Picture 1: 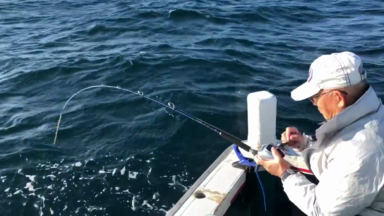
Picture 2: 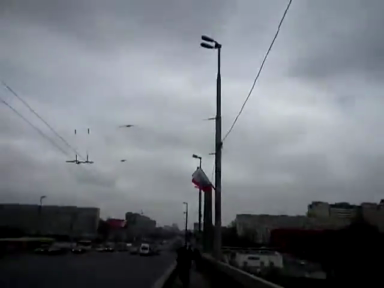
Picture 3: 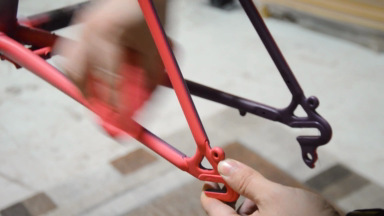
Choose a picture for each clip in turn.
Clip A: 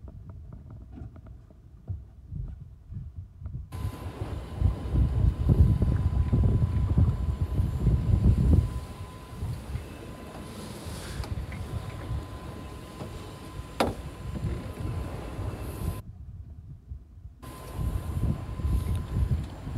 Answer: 1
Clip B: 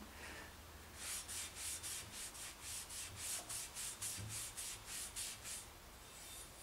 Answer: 3